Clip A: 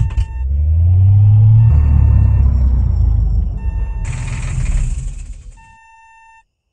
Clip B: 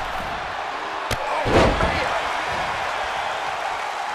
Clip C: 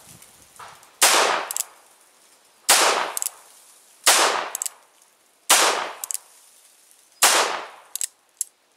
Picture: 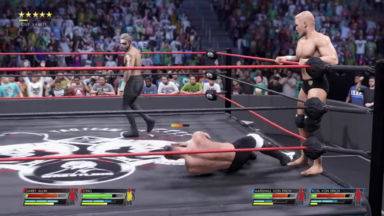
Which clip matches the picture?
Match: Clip B